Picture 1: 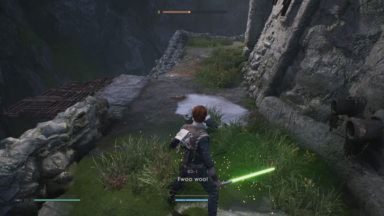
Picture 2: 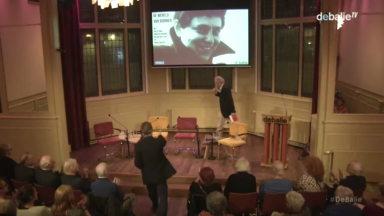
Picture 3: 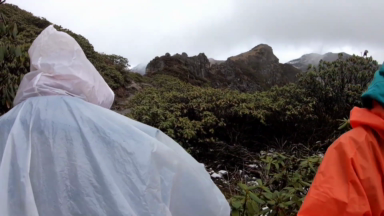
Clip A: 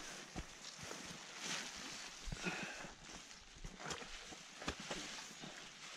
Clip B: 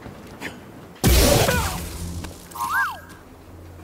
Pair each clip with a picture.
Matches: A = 3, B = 1